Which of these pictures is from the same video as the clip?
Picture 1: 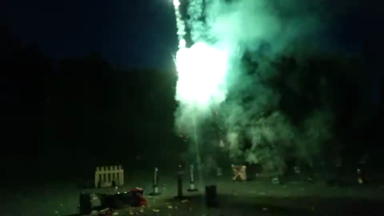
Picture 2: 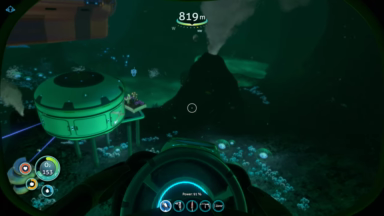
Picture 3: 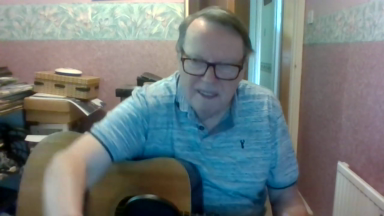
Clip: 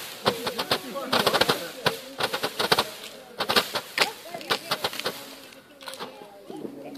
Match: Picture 1